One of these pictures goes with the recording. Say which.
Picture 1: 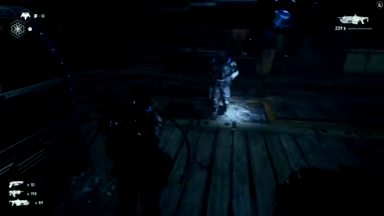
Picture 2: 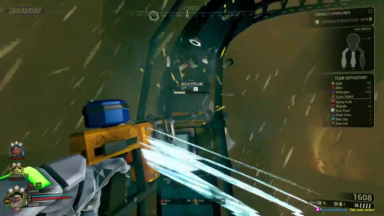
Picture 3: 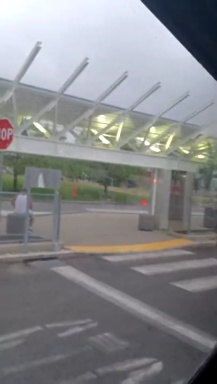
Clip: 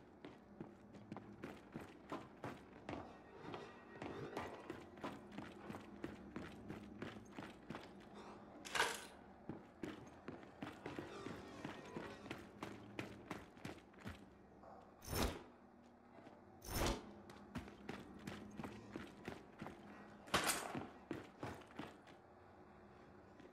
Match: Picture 1